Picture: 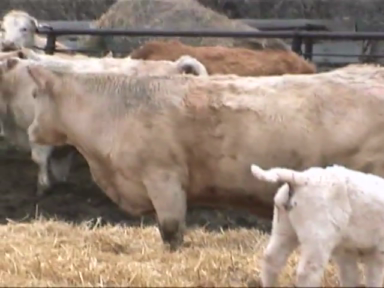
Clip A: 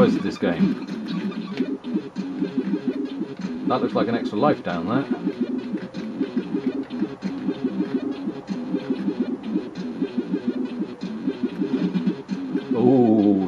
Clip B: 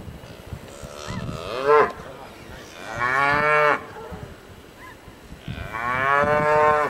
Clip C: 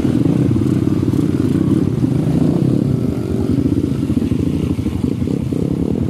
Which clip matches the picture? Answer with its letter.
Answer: B